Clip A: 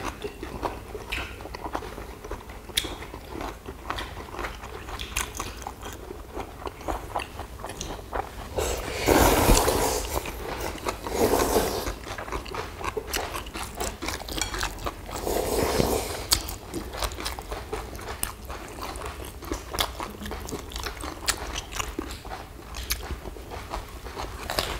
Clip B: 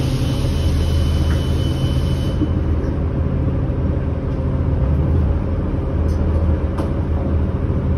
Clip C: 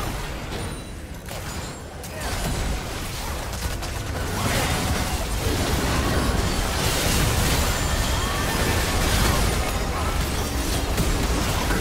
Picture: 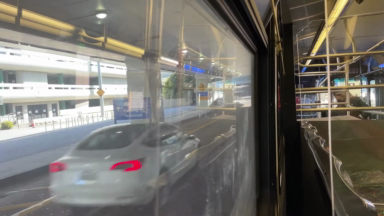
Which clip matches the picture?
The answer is B